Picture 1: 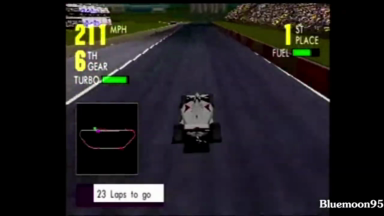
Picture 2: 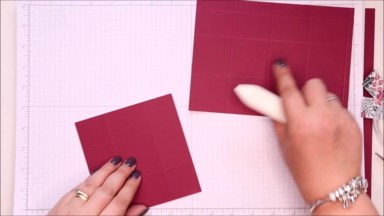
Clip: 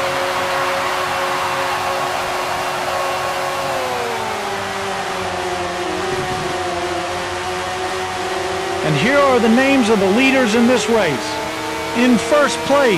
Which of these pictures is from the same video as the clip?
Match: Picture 1